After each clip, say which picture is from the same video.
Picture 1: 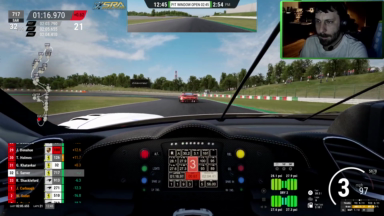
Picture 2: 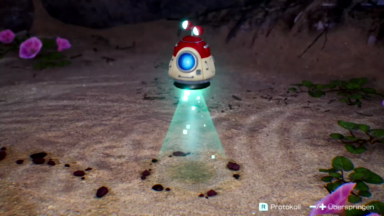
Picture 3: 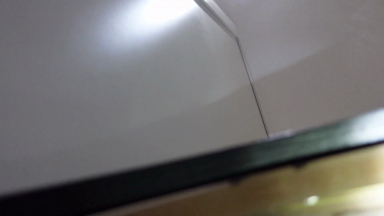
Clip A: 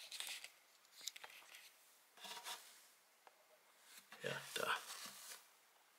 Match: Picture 3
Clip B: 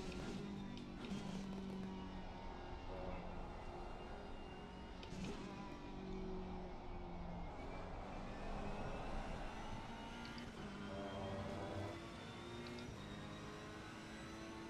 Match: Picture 1